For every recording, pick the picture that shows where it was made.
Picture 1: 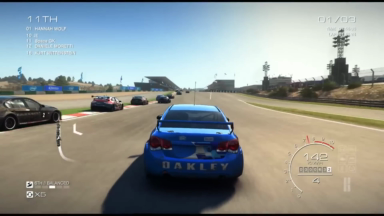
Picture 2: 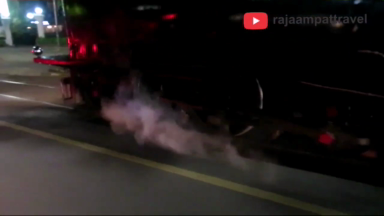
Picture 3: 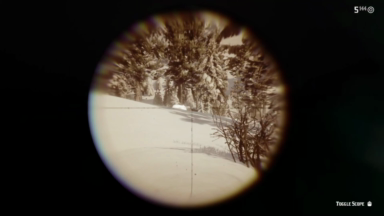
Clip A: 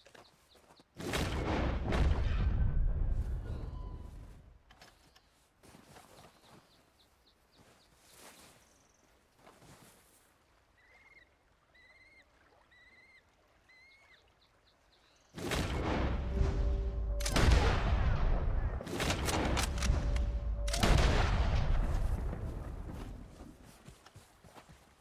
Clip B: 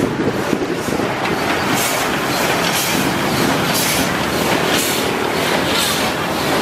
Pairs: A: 3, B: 2